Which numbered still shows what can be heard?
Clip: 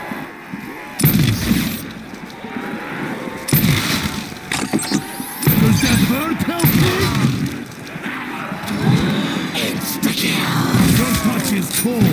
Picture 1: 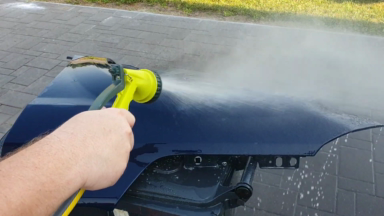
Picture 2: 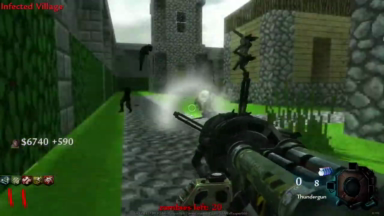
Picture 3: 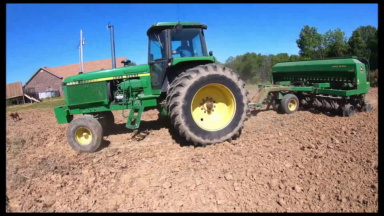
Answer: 2